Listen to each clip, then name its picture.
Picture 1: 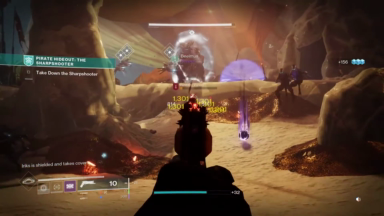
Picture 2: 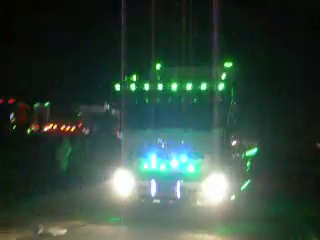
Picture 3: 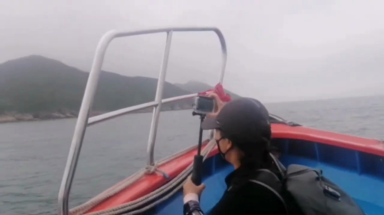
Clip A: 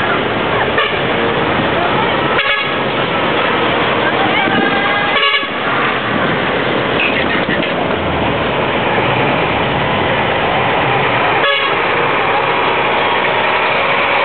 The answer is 2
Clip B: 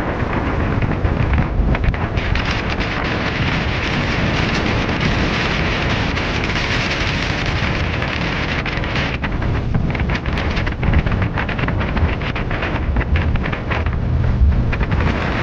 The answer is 3